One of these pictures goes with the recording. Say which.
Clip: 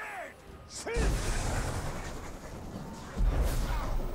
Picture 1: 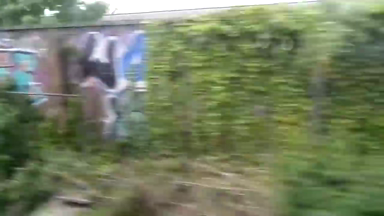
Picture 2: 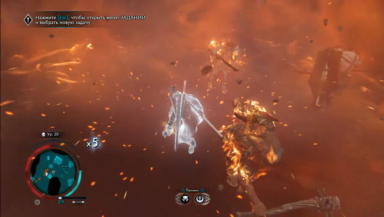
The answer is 2